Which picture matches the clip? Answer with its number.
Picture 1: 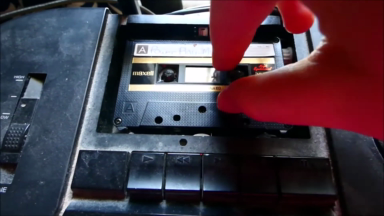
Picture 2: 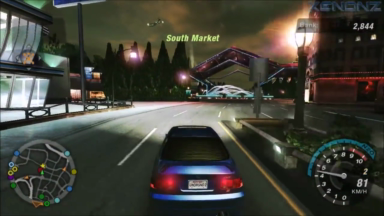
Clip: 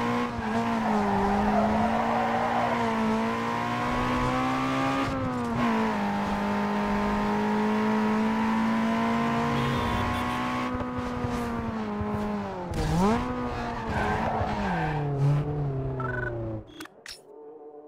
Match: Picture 2